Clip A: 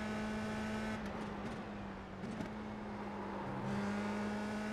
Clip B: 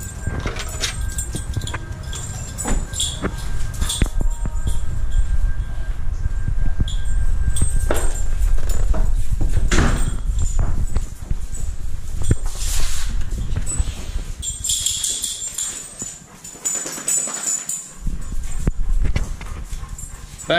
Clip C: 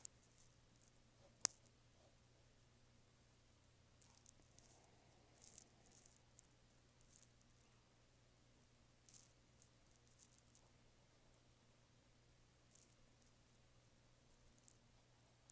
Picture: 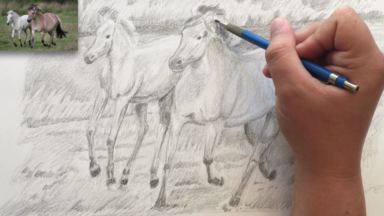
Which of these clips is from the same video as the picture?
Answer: C